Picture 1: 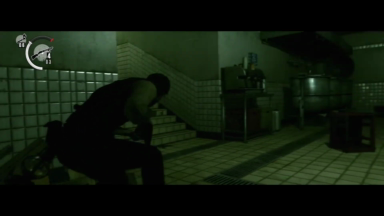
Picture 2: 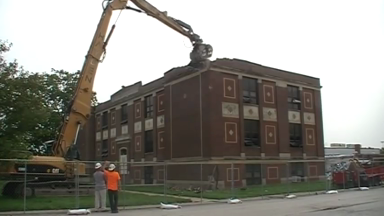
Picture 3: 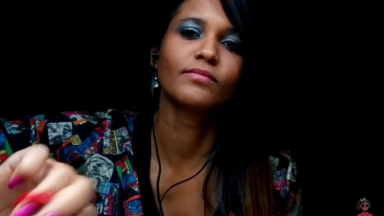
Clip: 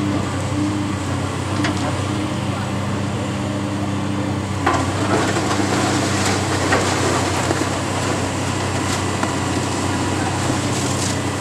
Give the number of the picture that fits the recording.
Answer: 2